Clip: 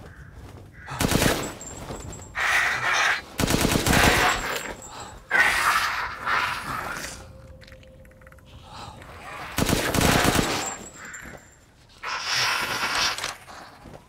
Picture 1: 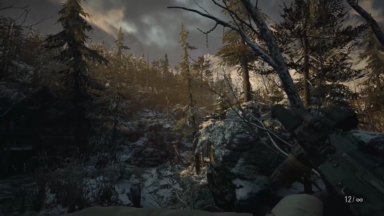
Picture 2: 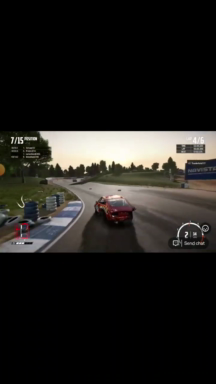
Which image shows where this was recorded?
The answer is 1